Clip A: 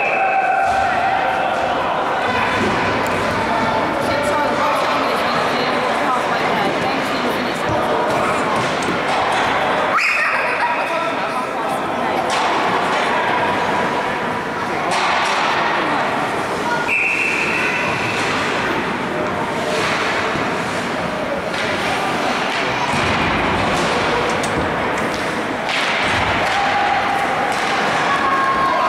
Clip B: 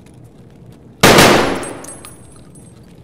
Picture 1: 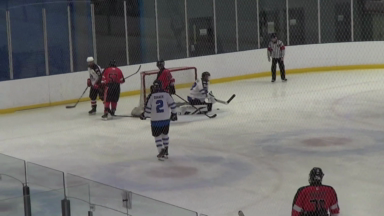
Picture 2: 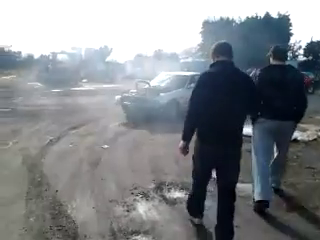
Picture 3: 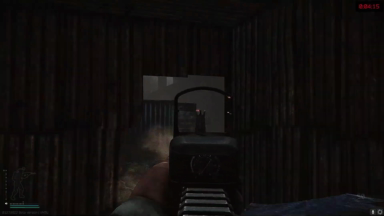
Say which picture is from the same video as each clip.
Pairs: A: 1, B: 3